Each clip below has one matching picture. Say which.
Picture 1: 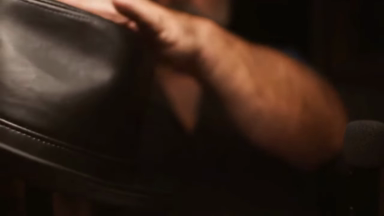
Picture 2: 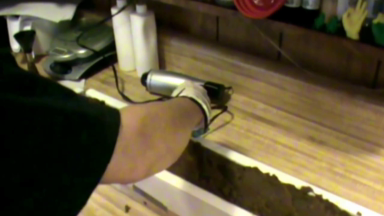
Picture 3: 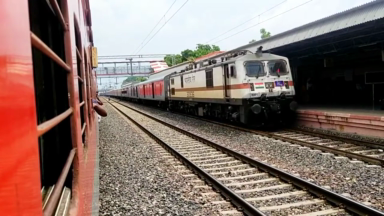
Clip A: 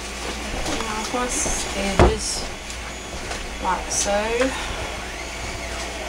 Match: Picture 2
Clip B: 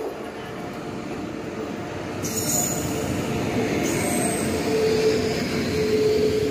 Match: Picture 3